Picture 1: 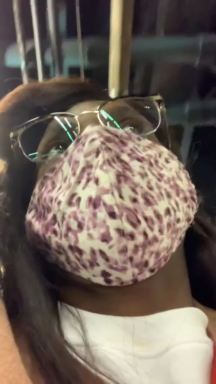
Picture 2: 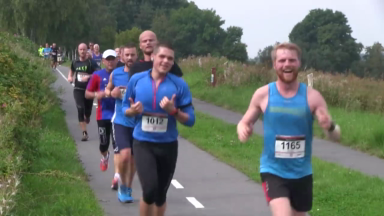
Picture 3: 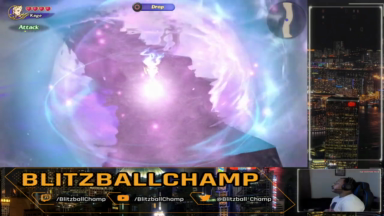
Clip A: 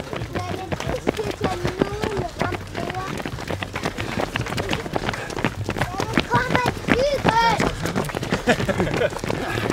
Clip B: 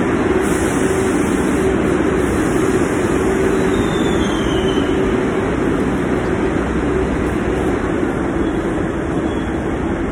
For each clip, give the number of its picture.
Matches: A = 2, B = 1